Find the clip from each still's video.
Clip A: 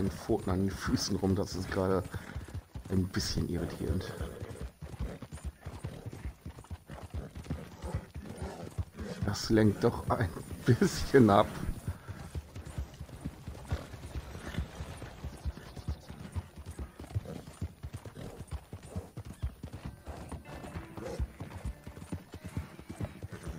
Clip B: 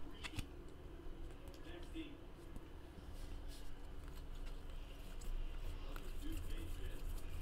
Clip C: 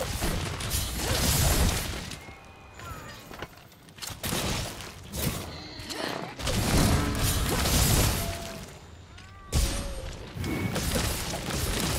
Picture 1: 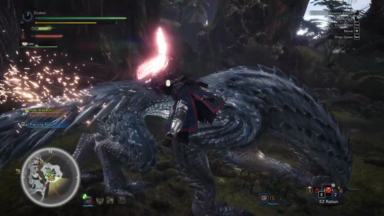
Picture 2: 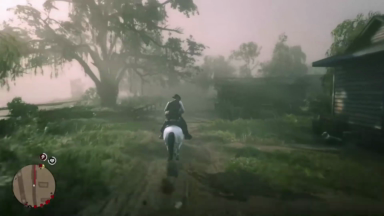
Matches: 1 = C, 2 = A